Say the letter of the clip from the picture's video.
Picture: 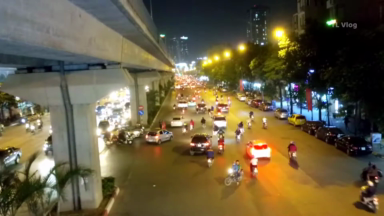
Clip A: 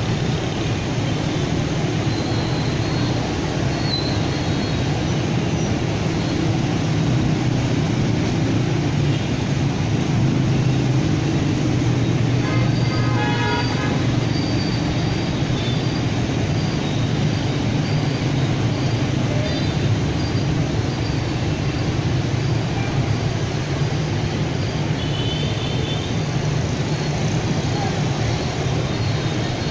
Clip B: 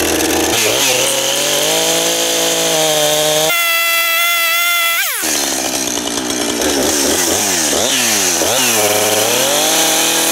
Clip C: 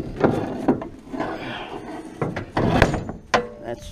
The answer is A